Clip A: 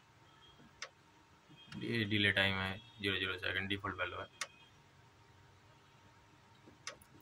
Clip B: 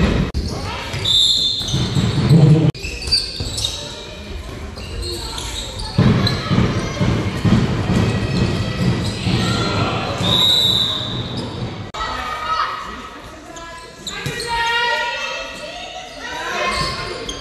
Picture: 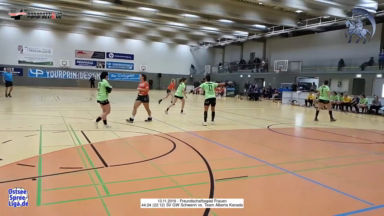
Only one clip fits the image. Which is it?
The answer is B